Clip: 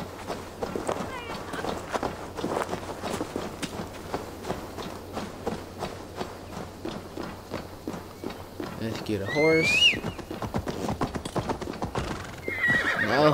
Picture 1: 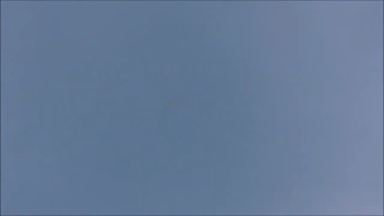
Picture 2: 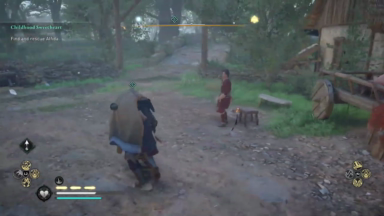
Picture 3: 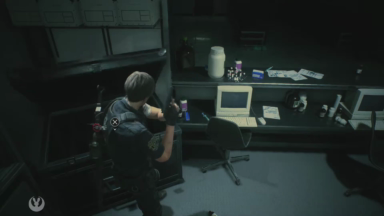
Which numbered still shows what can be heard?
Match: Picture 2